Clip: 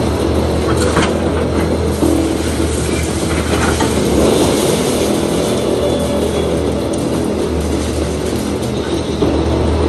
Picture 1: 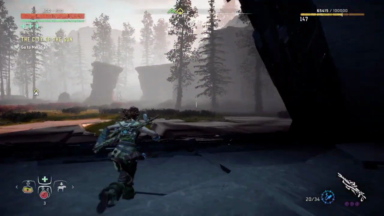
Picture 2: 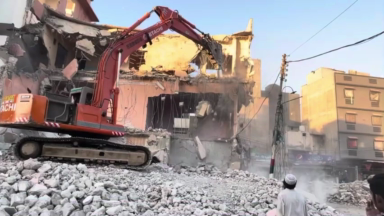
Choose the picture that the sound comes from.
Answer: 2